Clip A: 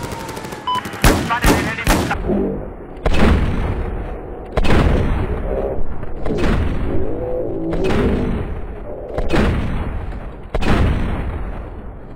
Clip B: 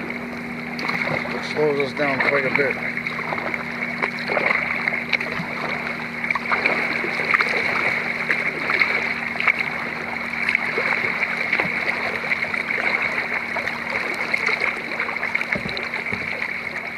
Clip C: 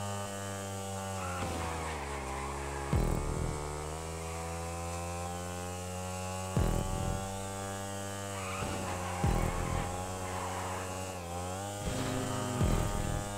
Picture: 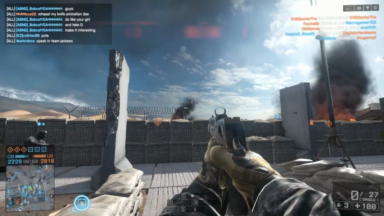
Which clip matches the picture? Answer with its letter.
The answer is A